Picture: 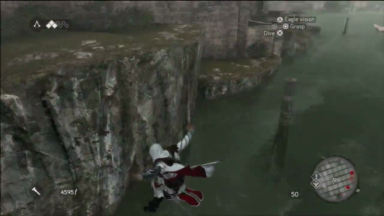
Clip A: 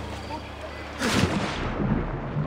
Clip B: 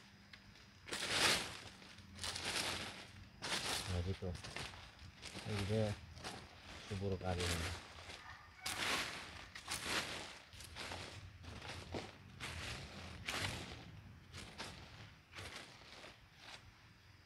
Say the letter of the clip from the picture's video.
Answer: A